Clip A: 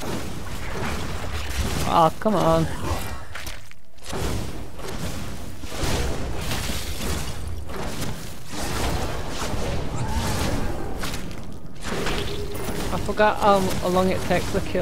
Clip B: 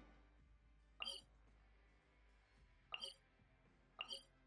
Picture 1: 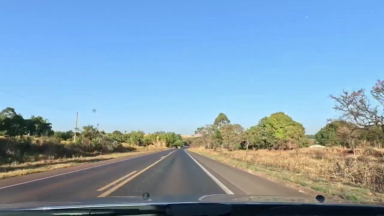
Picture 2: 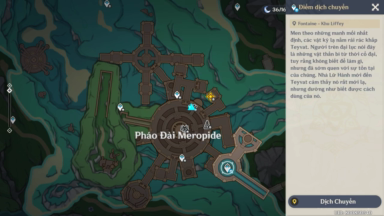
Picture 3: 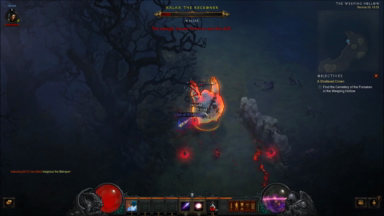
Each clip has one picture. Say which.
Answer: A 3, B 2